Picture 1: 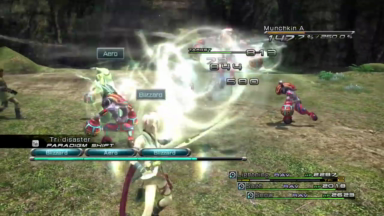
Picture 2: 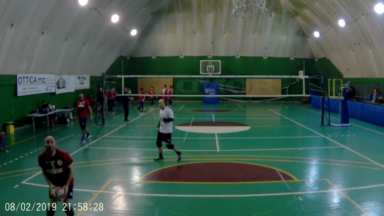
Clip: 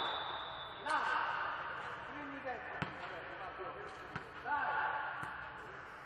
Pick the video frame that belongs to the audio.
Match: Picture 2